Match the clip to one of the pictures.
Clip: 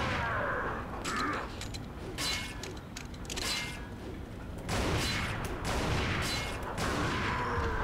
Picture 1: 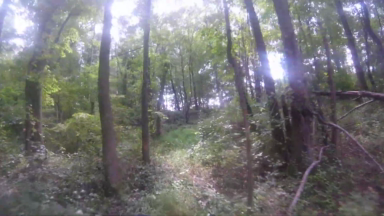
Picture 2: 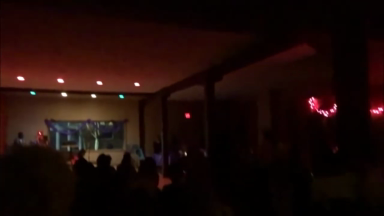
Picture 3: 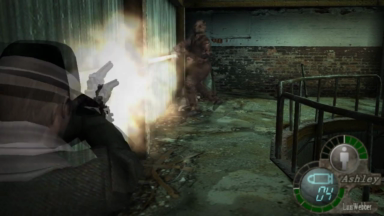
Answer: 3